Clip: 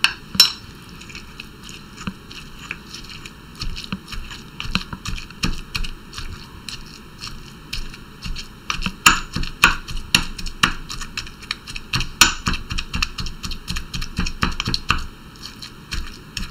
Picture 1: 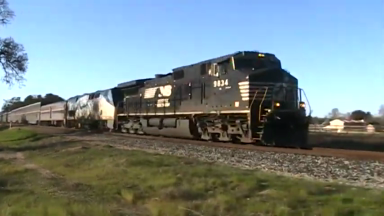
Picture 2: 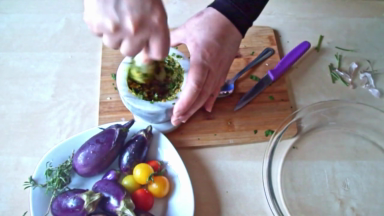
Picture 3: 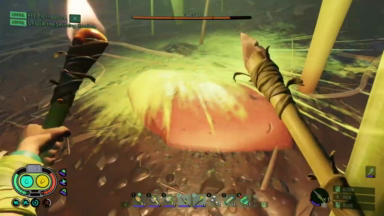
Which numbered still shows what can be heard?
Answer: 2